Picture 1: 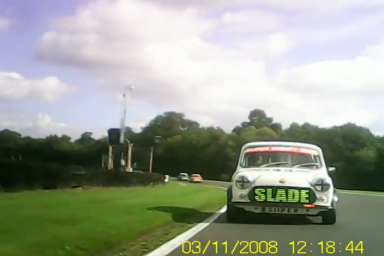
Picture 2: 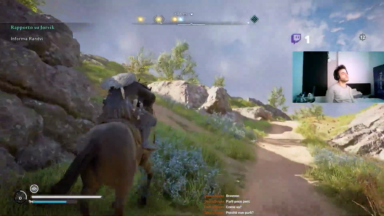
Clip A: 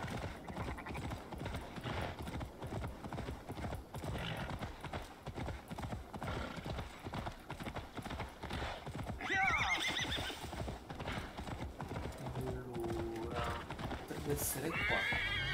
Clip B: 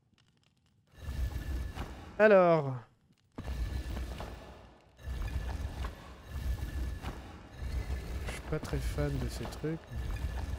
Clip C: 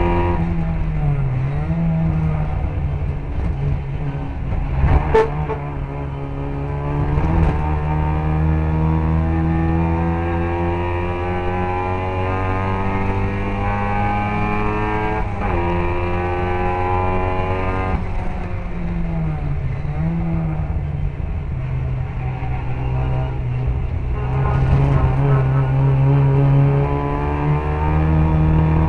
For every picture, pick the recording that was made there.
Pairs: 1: C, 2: A